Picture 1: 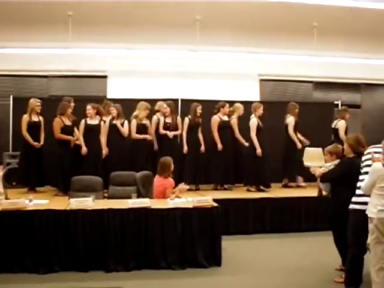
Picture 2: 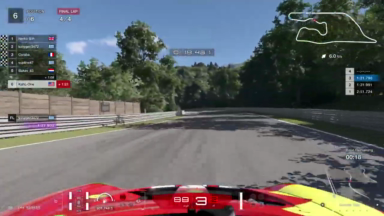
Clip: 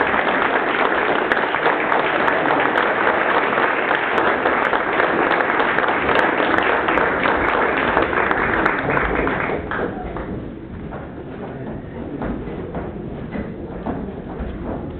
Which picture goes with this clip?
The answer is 1